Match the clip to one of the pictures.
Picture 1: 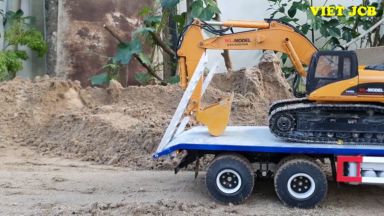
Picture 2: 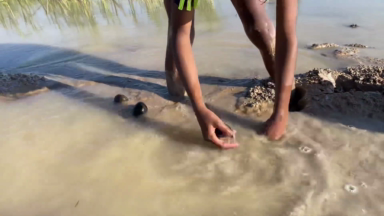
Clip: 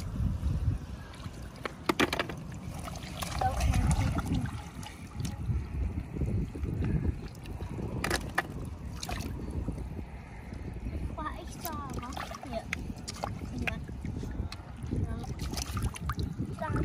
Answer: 2